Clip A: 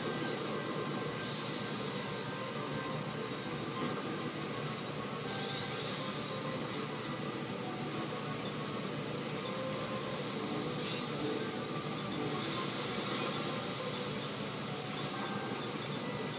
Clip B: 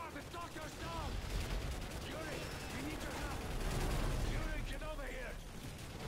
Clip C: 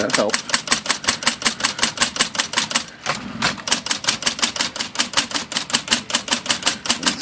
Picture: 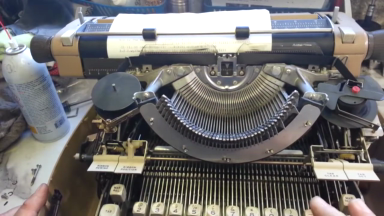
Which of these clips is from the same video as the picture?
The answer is C